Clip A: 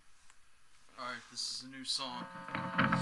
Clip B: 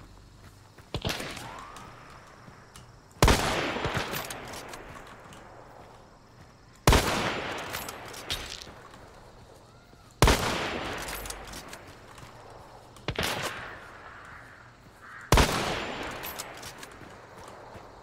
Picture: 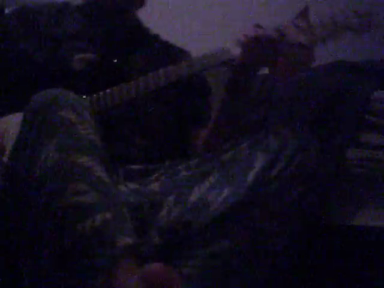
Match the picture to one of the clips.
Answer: A